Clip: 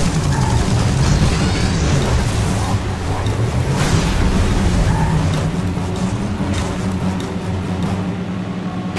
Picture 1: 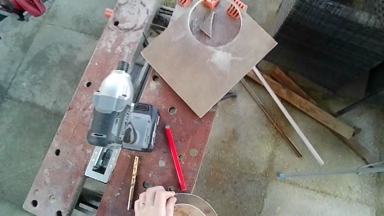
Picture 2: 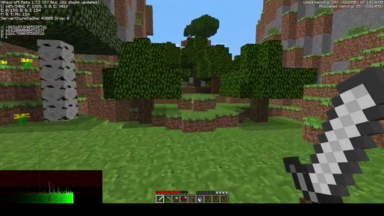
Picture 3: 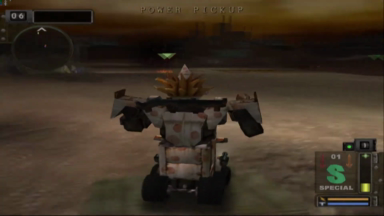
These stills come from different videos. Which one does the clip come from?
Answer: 3